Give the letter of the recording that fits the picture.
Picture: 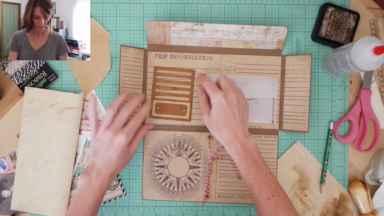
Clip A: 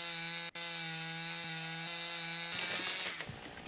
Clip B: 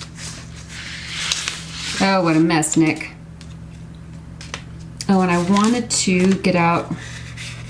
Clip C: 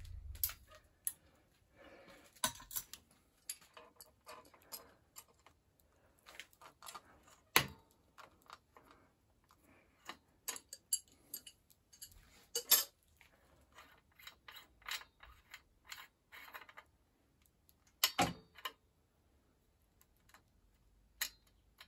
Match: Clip B